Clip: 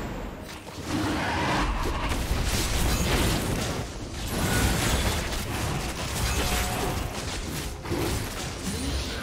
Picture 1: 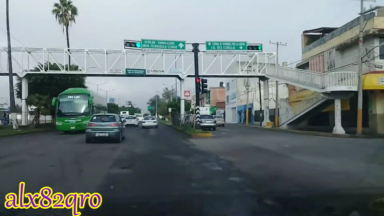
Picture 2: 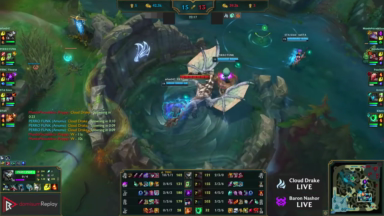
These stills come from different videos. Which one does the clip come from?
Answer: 2